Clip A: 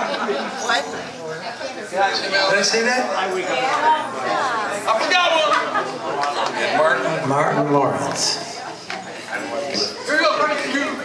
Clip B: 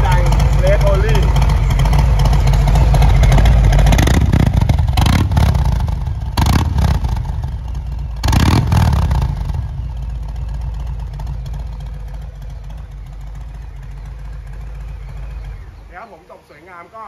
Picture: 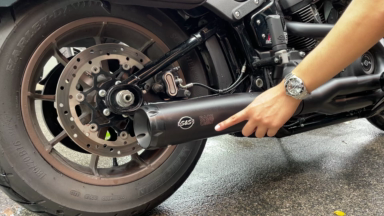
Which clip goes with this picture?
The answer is B